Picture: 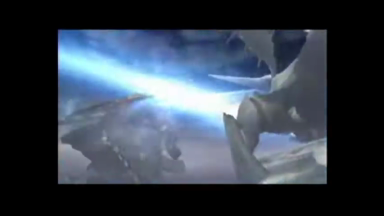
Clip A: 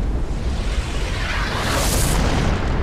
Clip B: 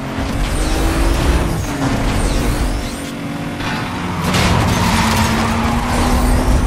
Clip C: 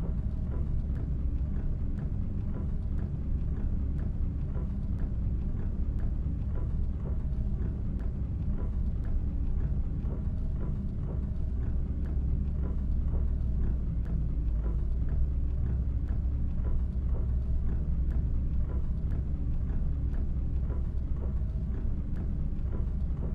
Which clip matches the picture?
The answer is A